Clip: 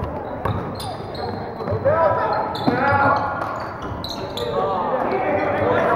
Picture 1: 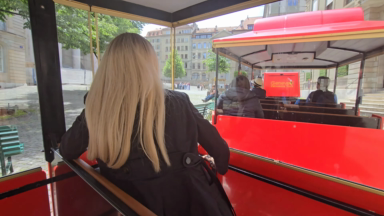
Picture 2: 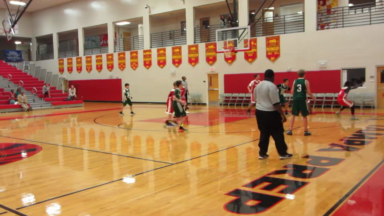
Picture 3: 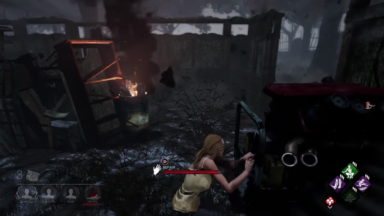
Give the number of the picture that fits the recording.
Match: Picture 2